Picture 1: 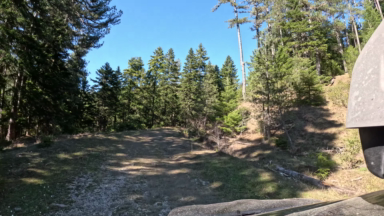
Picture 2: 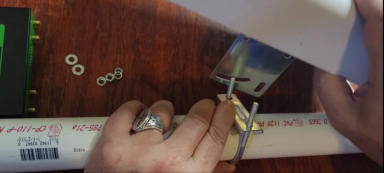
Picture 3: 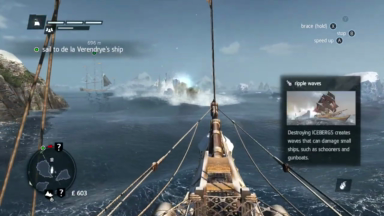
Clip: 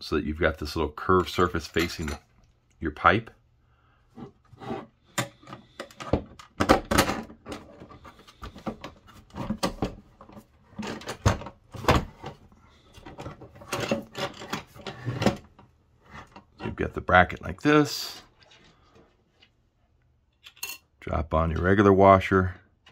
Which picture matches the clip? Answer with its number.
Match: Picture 2